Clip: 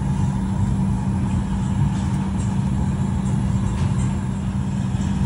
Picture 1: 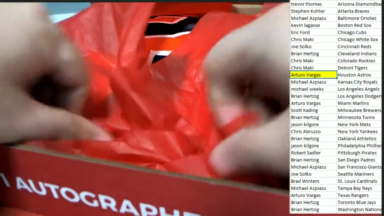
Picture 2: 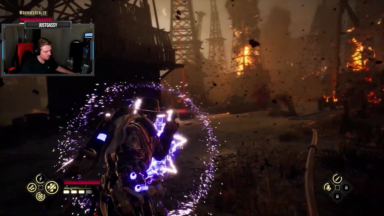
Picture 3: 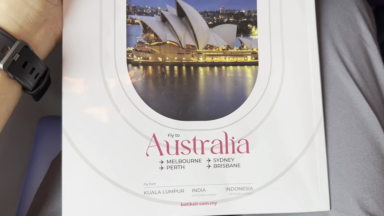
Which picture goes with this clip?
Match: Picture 3